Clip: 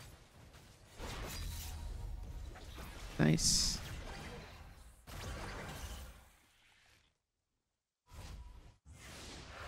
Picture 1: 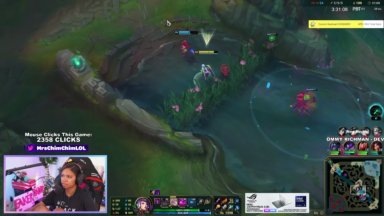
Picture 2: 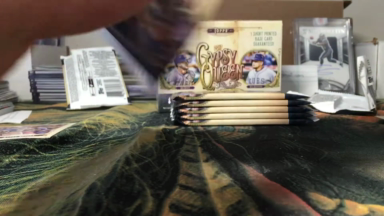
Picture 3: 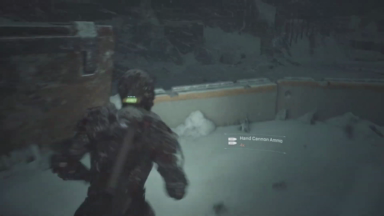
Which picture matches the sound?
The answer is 1